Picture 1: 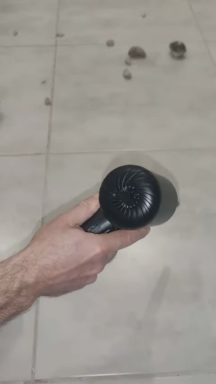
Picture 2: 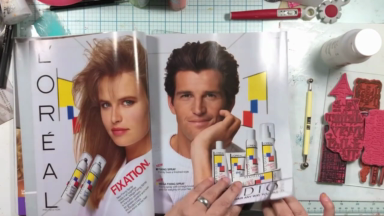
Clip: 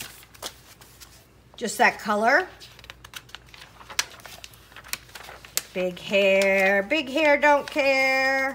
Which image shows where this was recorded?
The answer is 2